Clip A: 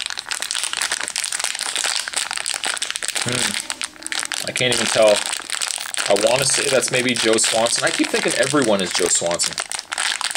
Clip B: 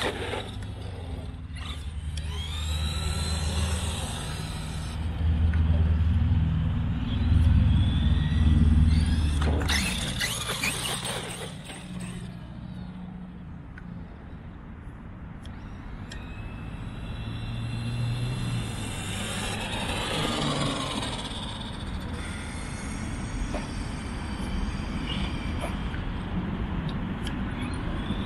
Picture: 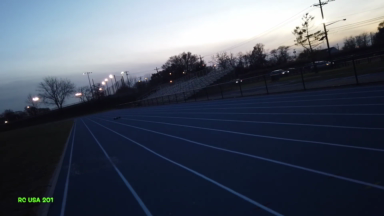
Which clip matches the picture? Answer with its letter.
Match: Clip B